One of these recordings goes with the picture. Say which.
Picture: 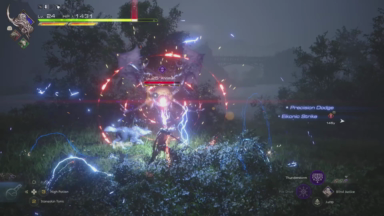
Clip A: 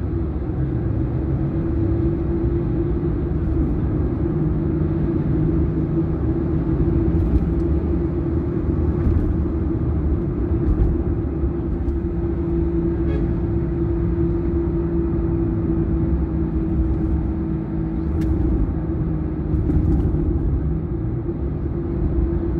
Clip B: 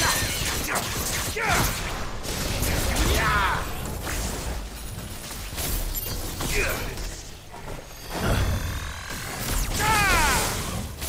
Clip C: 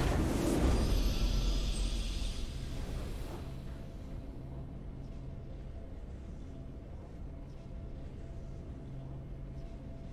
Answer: B